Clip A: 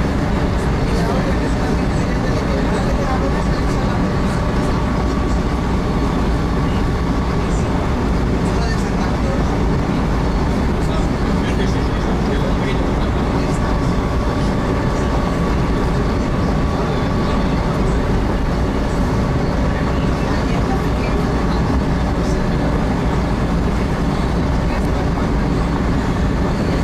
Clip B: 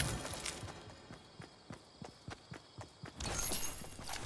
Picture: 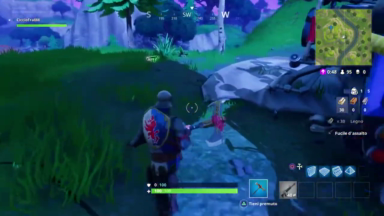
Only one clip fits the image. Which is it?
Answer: B